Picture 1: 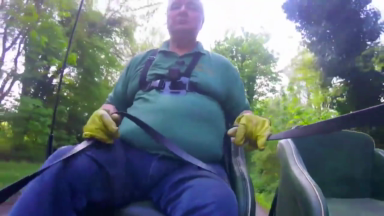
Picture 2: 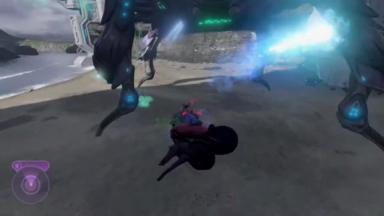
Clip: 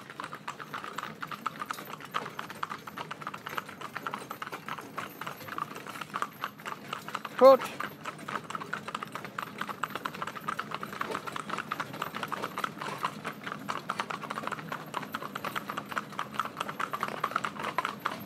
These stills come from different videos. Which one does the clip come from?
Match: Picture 1